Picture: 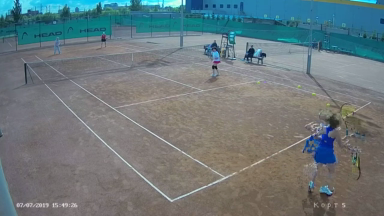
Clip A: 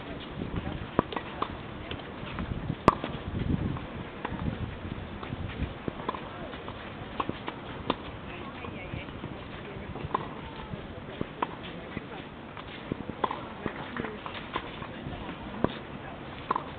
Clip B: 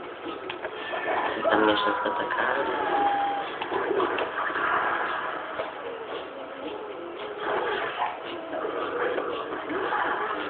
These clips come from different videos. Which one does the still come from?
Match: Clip A